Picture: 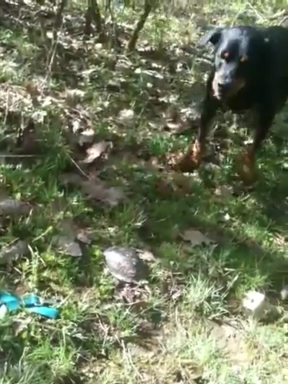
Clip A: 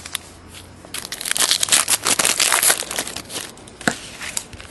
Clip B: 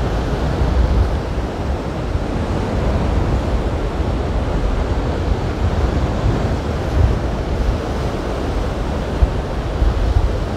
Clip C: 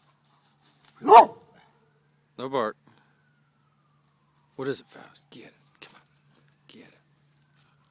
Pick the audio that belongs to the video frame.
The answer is C